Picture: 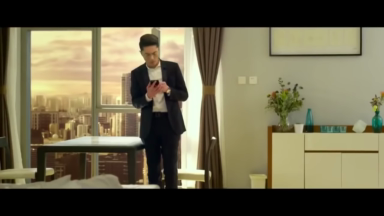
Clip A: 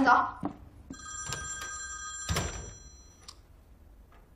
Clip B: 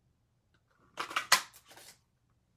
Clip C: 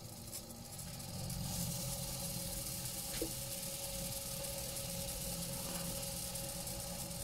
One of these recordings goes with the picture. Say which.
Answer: A